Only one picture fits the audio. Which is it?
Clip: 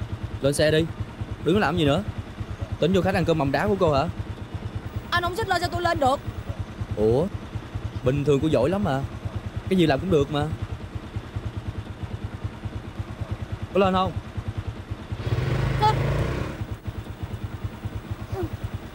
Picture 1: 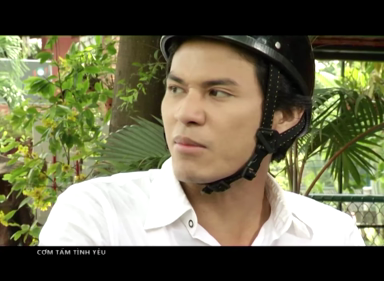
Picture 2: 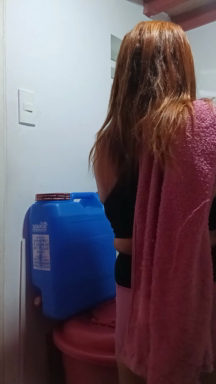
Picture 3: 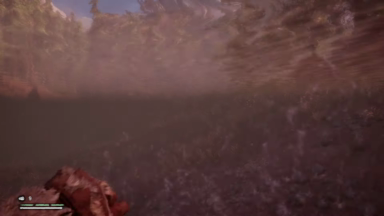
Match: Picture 1